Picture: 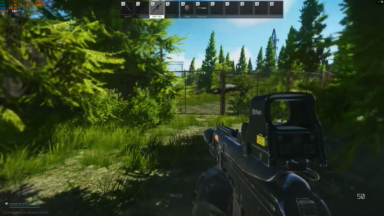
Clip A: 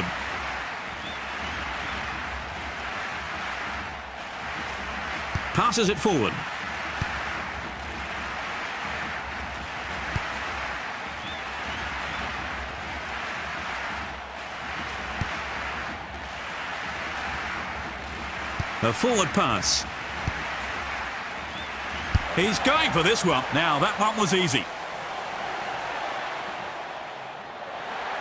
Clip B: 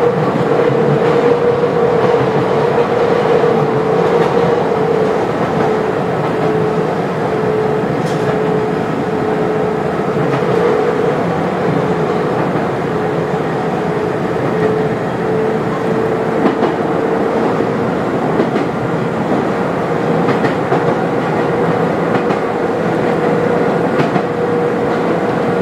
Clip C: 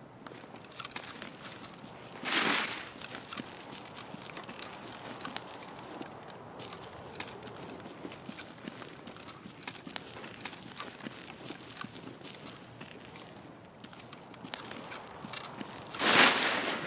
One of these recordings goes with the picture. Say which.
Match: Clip C